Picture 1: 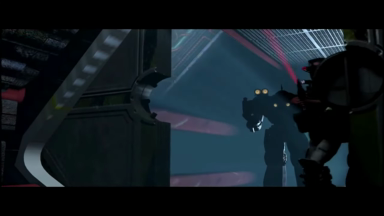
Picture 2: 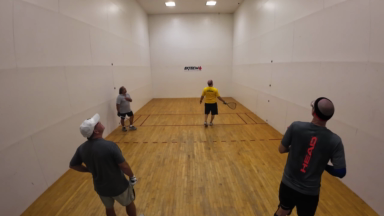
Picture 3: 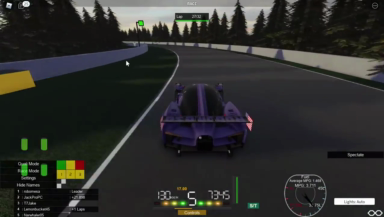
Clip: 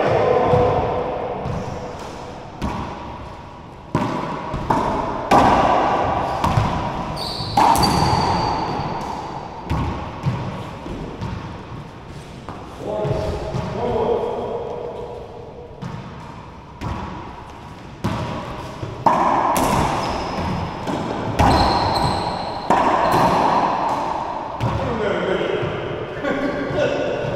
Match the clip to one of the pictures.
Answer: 2